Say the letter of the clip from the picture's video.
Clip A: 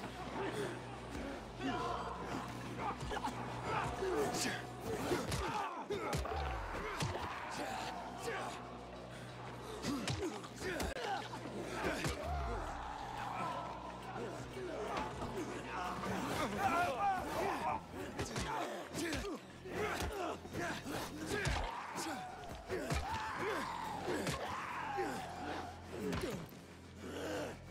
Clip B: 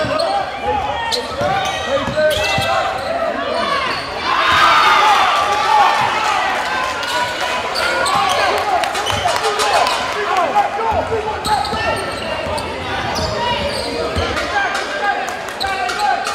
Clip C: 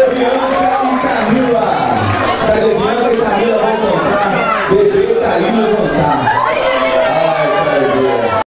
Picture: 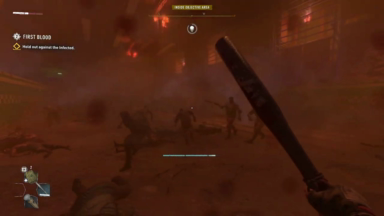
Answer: A